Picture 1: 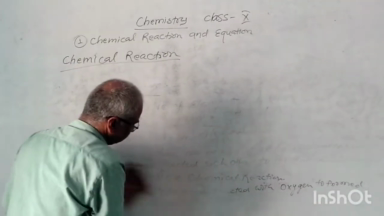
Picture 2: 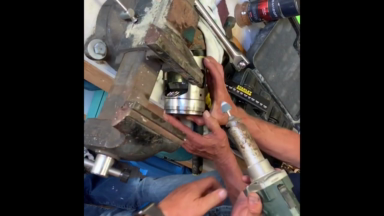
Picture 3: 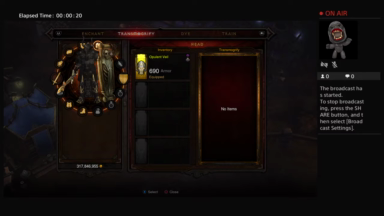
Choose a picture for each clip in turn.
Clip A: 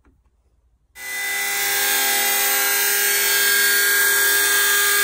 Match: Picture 2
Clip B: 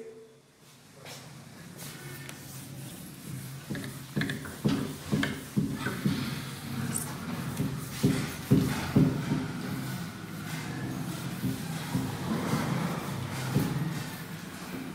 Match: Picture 1